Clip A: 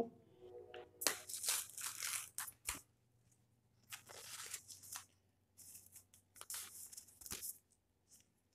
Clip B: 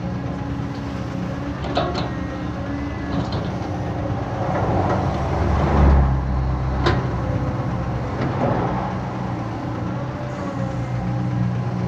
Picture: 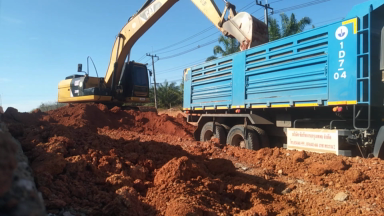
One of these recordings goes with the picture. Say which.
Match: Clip B